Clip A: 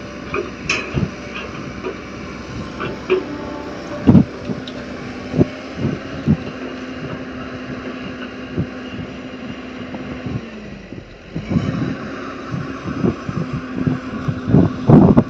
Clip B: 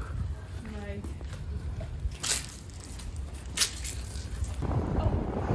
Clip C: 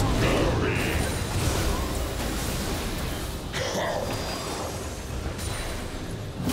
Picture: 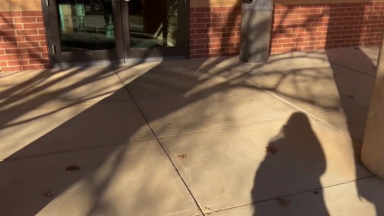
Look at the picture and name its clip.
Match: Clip B